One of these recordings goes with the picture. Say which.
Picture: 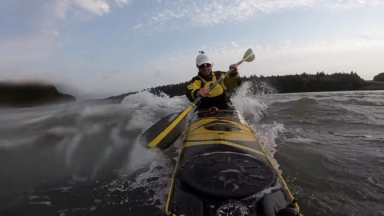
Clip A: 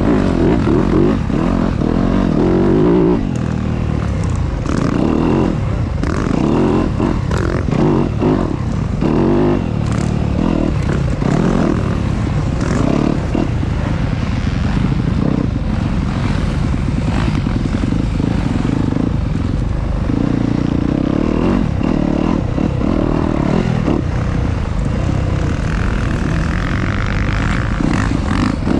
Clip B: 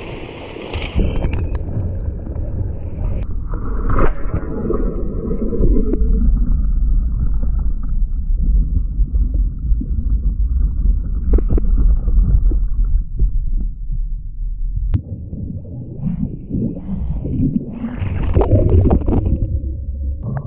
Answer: B